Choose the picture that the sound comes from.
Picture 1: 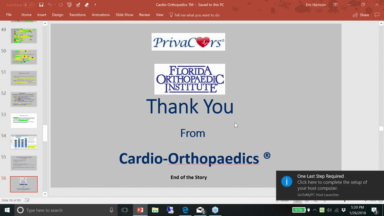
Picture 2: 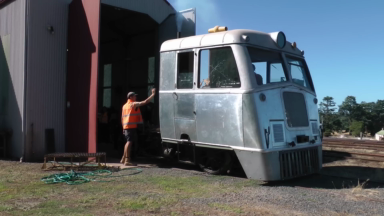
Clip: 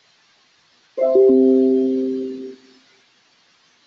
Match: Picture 1